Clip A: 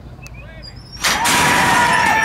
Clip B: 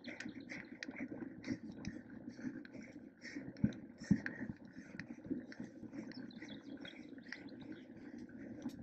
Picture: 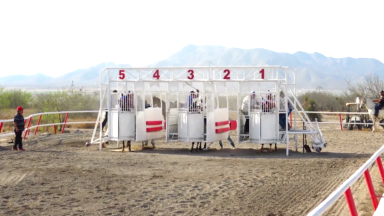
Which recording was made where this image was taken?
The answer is A